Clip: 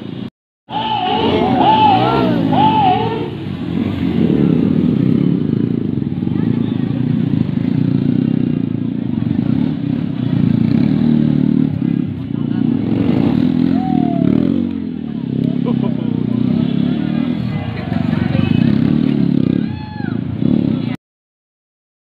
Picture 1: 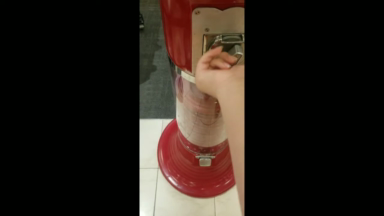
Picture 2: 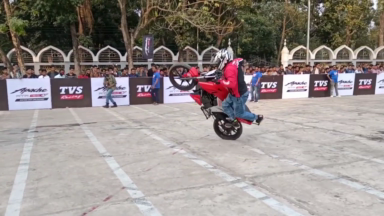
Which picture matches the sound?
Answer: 2